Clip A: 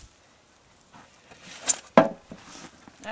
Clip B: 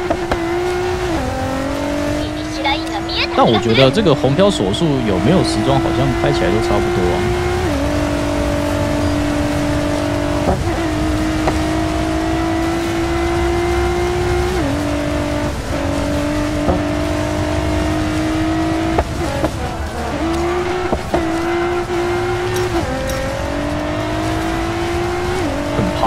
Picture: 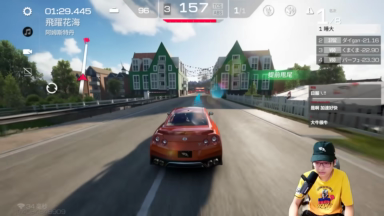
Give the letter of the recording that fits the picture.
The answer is B